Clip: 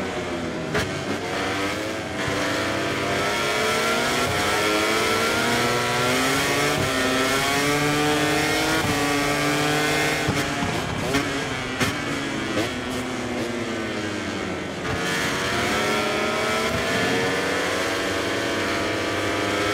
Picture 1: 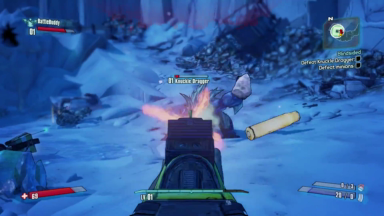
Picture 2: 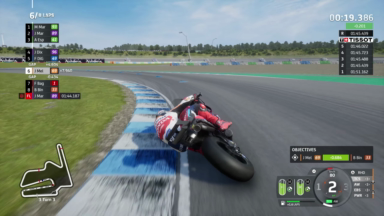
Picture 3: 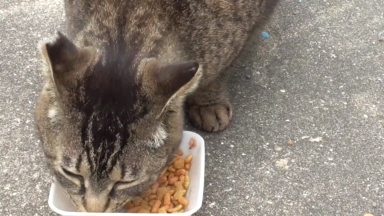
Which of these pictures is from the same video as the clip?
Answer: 2